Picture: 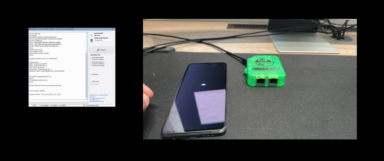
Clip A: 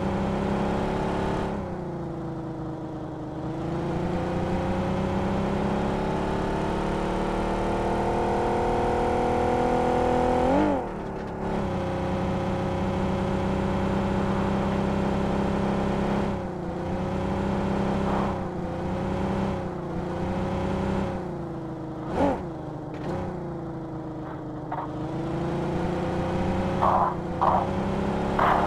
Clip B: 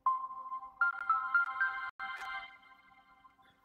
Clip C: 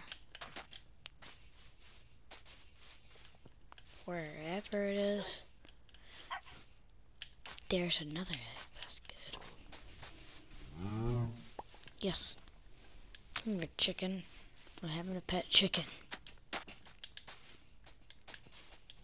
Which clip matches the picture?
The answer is B